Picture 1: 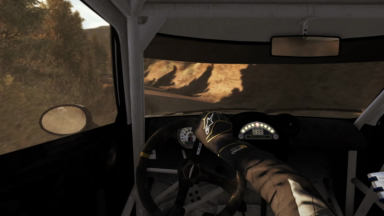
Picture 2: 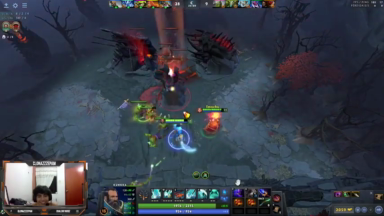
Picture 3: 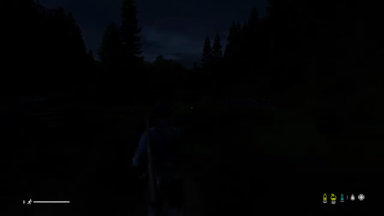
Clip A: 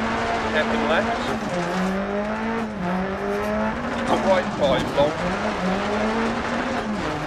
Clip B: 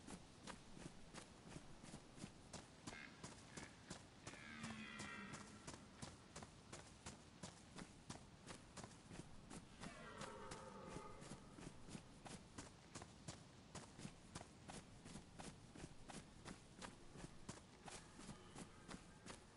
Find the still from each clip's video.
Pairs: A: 1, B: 3